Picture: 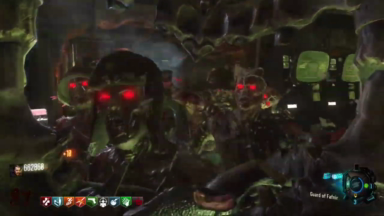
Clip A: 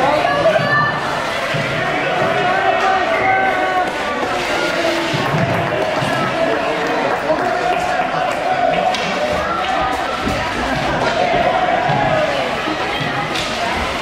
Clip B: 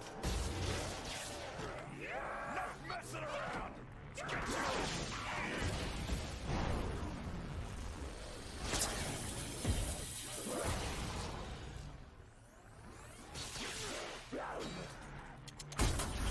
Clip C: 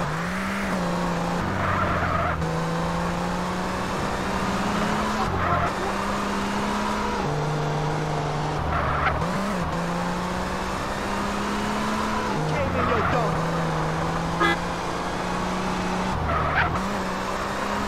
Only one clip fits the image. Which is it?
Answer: B